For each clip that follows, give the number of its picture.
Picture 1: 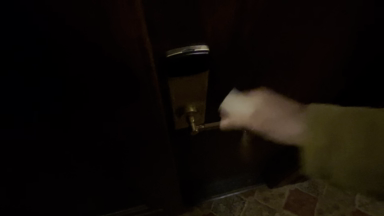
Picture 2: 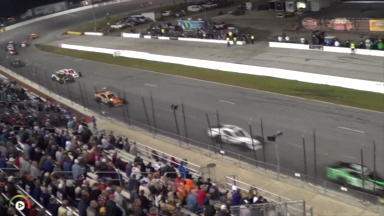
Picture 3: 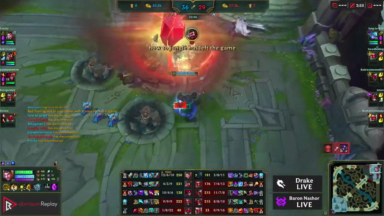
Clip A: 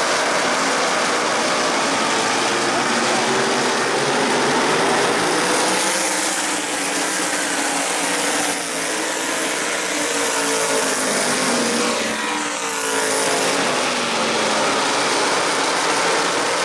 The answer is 2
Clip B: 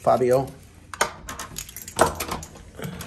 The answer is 1